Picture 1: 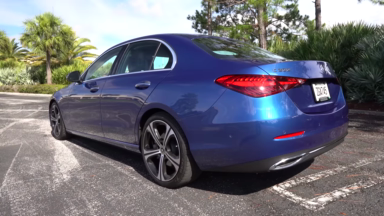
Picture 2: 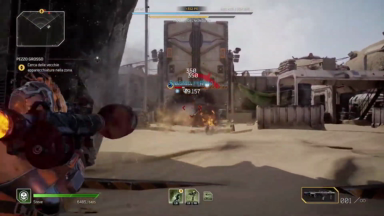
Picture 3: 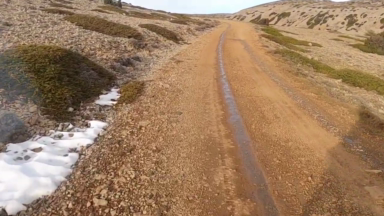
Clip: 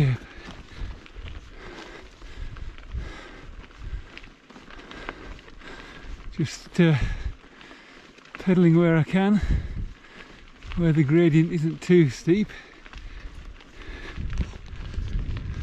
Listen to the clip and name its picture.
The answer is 3